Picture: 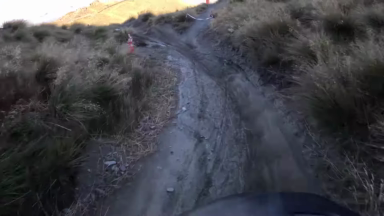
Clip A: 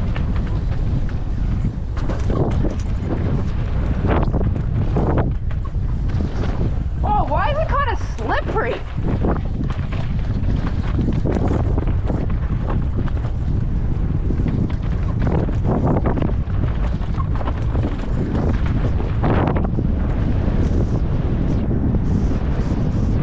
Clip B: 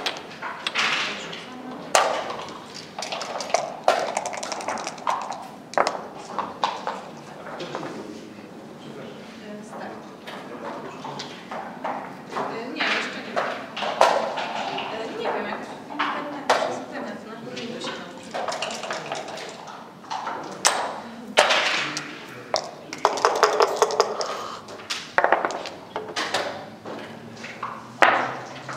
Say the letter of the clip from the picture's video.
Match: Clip A